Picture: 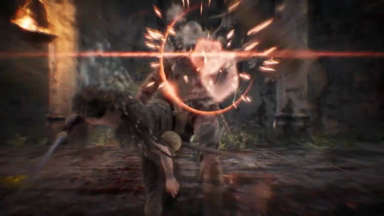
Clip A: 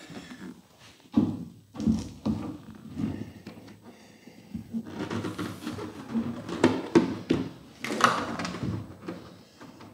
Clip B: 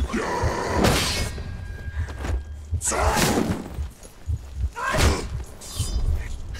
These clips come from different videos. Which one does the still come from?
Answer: B